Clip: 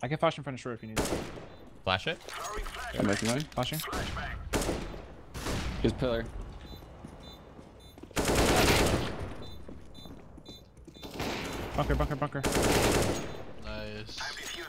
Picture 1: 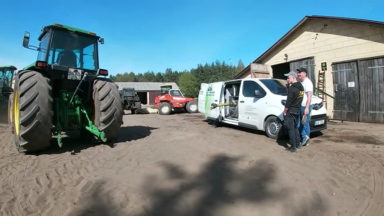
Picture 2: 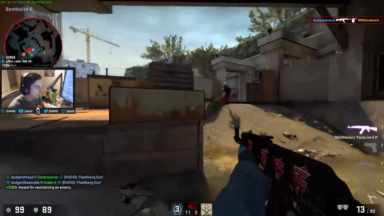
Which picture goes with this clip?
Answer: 2